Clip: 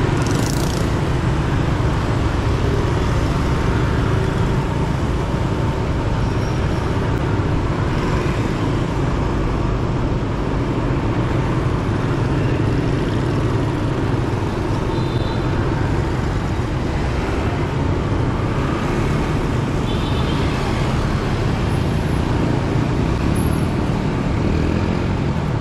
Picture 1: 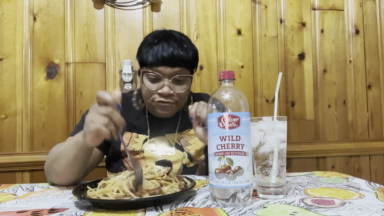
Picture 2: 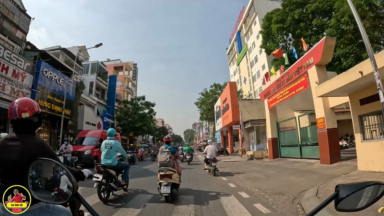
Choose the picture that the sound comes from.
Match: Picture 2